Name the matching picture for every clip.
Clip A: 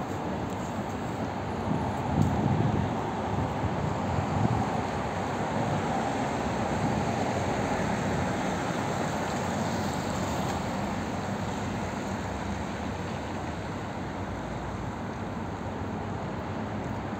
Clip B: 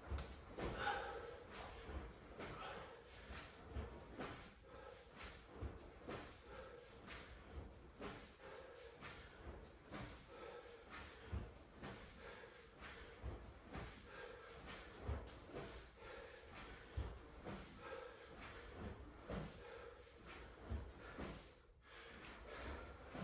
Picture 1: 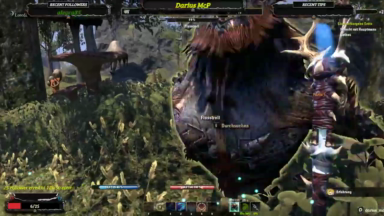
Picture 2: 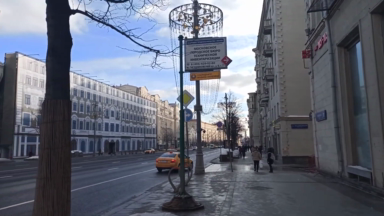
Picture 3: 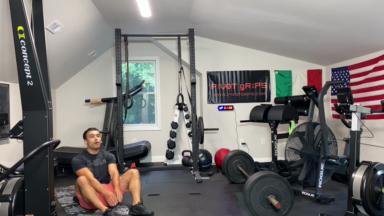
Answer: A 2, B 3